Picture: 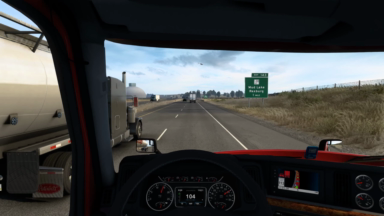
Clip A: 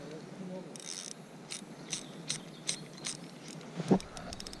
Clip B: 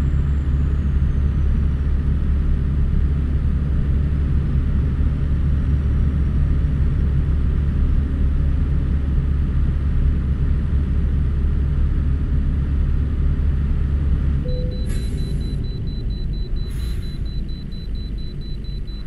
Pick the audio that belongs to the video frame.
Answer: B